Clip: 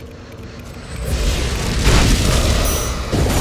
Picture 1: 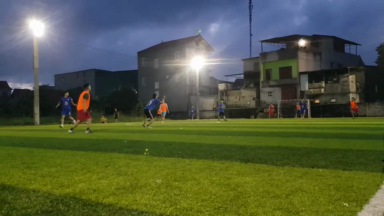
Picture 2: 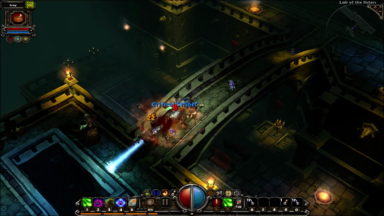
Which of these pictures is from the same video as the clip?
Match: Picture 2